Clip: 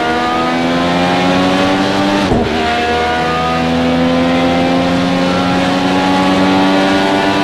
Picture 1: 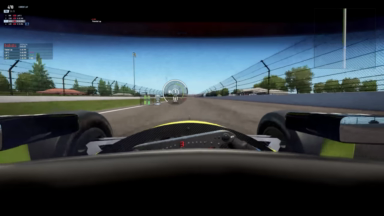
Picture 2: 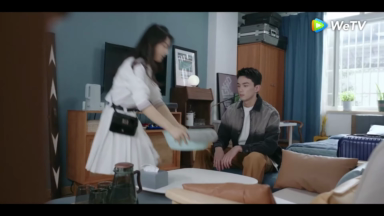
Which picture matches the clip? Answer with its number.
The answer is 1